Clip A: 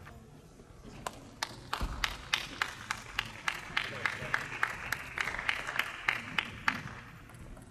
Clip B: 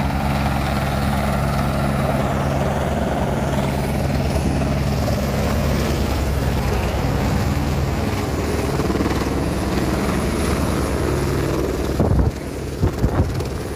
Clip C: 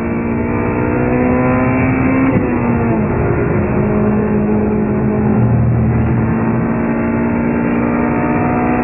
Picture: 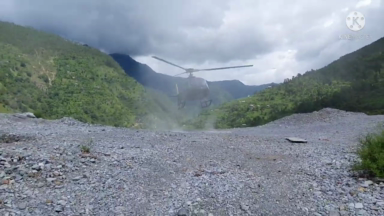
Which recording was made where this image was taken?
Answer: B